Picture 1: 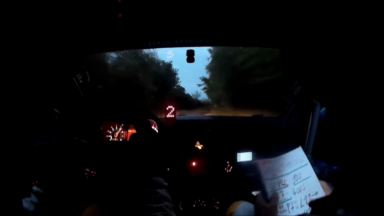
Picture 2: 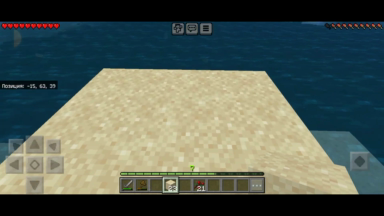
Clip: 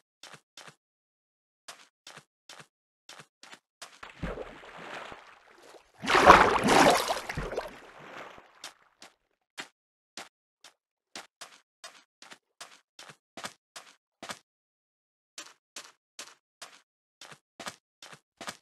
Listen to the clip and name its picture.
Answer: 2